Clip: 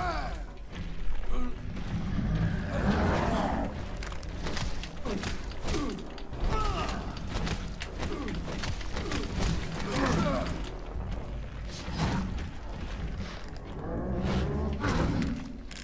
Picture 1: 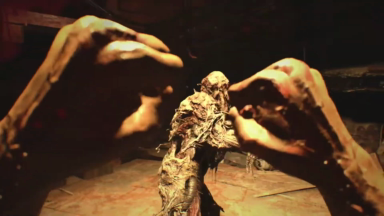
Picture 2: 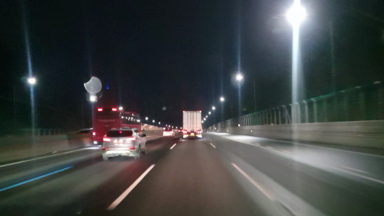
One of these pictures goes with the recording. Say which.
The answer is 1